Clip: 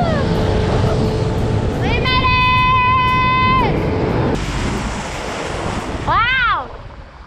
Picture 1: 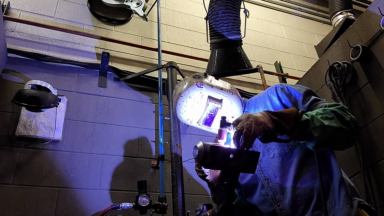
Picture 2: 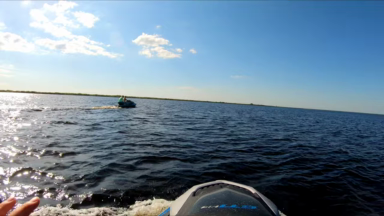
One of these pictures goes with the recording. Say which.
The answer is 2